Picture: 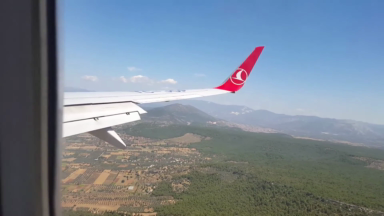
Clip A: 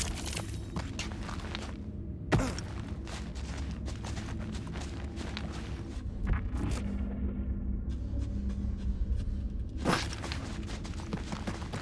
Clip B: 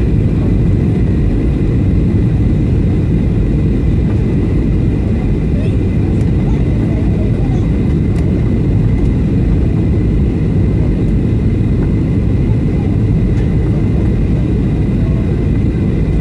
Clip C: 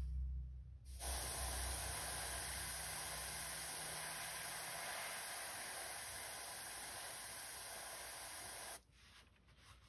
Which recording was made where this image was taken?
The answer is B